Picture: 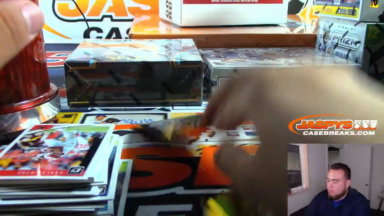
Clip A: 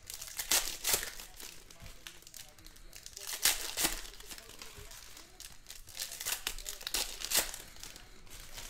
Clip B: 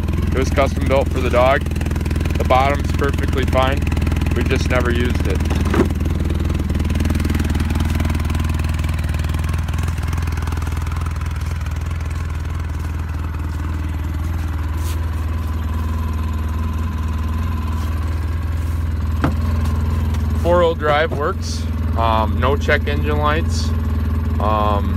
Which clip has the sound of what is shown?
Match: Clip A